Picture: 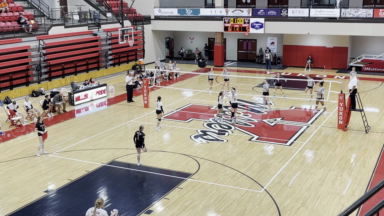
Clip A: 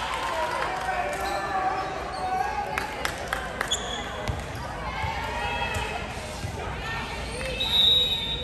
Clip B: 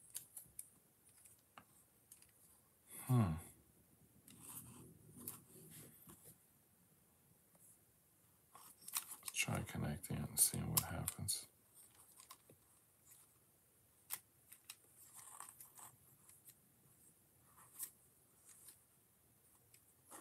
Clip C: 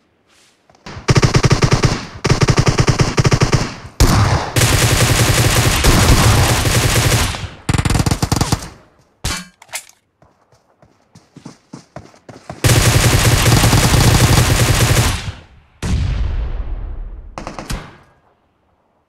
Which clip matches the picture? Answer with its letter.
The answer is A